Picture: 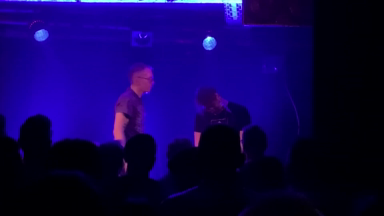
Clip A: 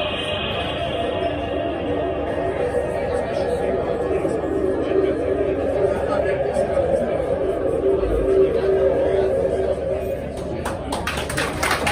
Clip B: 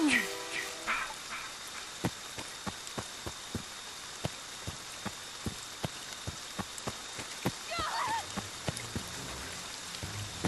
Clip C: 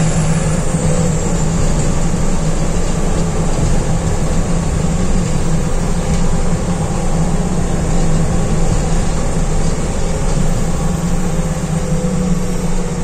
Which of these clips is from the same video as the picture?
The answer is A